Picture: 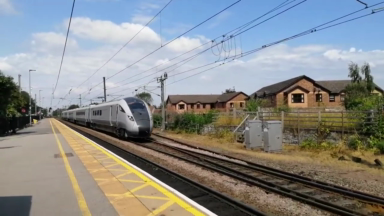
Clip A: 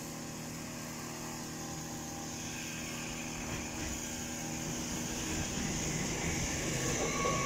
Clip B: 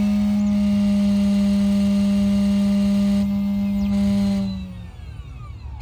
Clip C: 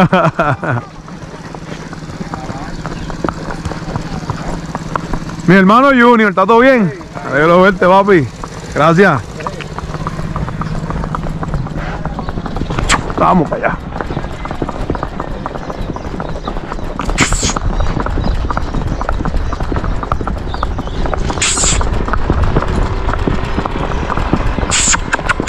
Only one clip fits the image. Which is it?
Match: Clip A